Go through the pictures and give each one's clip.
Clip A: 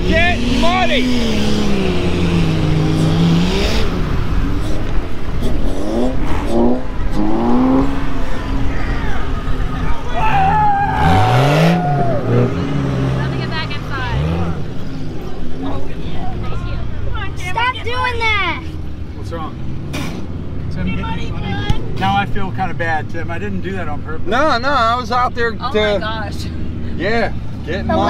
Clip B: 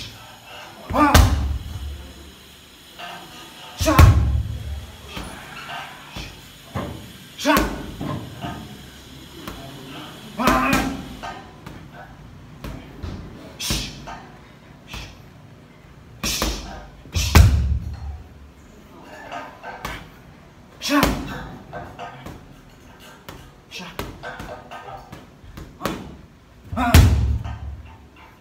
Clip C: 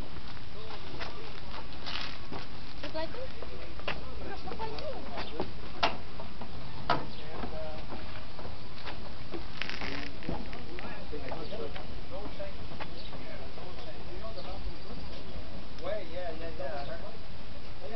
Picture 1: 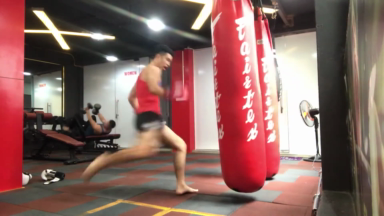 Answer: B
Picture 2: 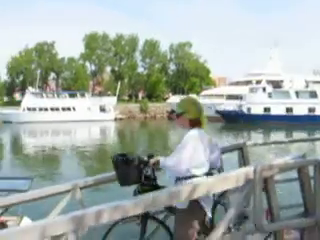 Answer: C